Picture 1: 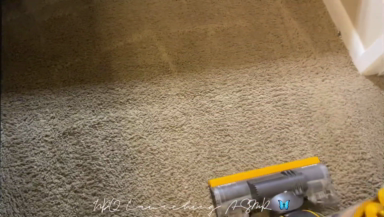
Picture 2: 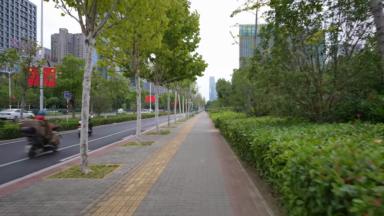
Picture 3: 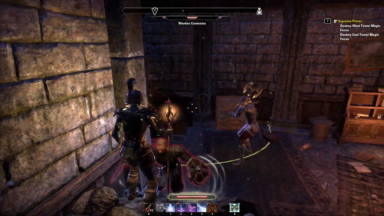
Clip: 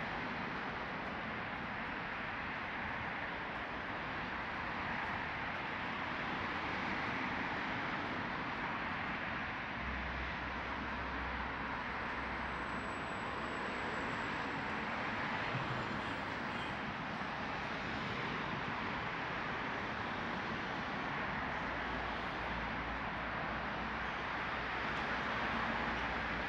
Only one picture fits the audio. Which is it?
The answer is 2